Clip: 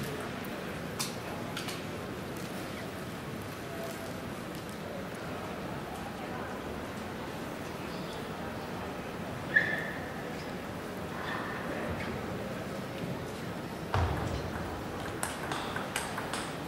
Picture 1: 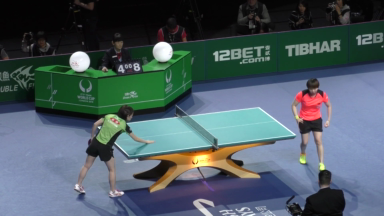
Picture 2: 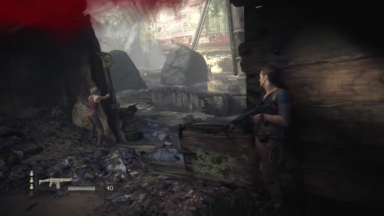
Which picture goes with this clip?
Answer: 1